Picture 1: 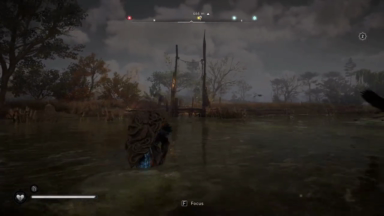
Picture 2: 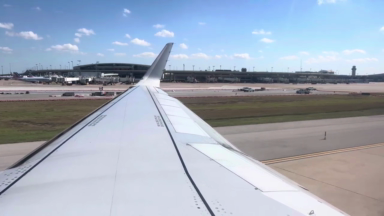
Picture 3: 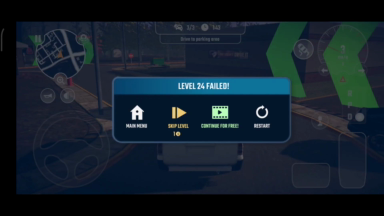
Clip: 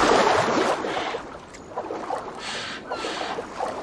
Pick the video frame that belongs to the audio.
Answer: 1